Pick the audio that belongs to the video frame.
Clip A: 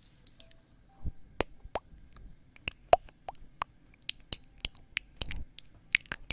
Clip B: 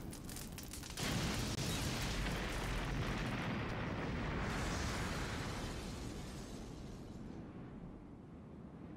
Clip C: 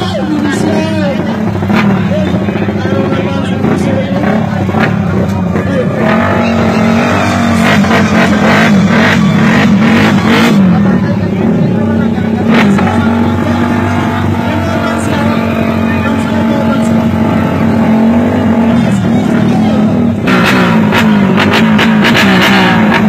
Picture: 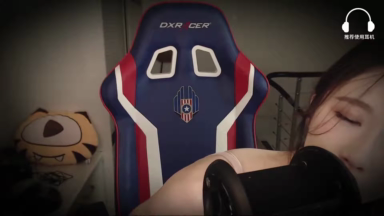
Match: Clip A